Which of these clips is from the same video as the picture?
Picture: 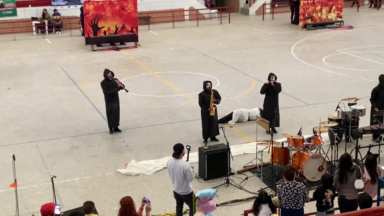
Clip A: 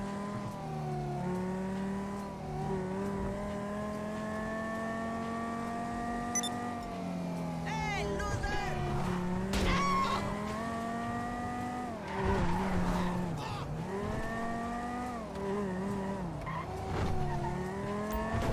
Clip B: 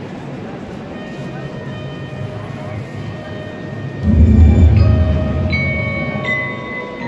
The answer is B